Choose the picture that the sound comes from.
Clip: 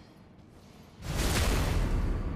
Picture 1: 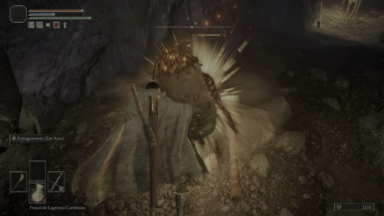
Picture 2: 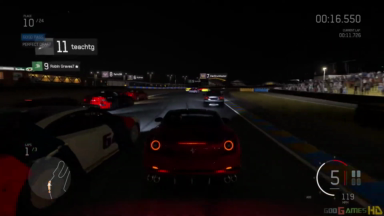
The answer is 1